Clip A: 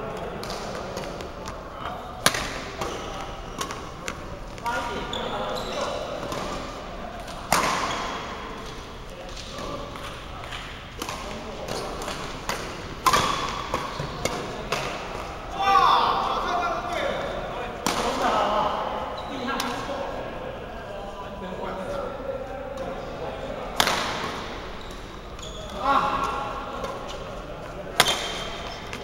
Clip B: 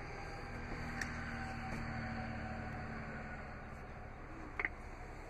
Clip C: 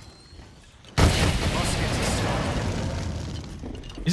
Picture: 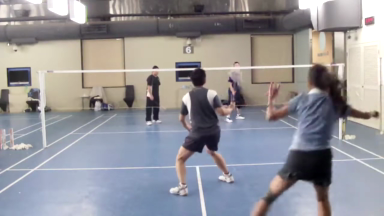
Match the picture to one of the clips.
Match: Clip A